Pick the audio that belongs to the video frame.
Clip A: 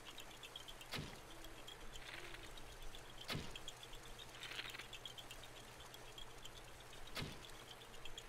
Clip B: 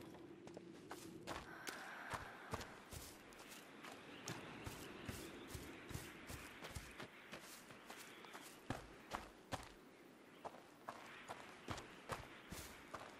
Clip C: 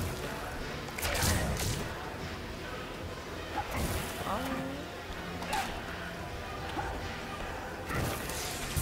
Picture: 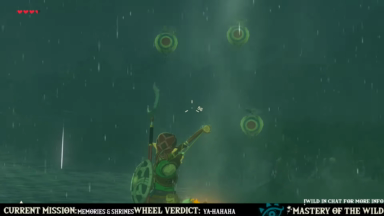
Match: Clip A